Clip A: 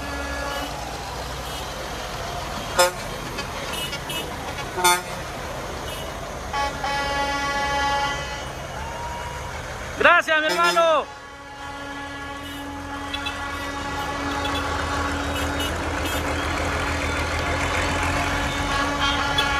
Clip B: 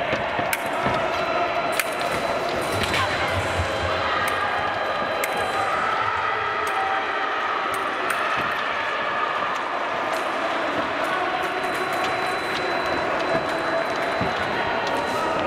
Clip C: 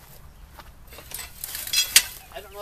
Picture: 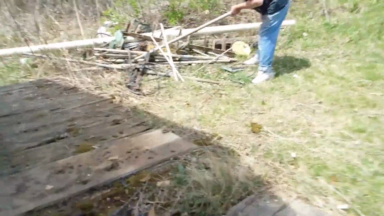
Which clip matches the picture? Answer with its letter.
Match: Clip C